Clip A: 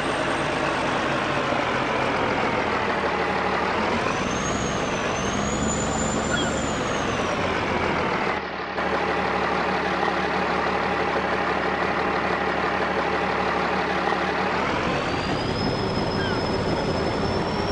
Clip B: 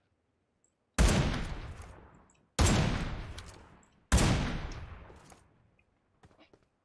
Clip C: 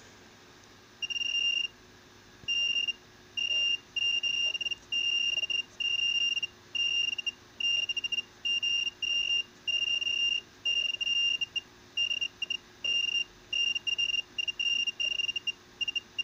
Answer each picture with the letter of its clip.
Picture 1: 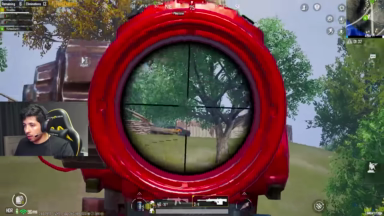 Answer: B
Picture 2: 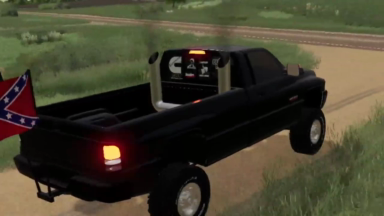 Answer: A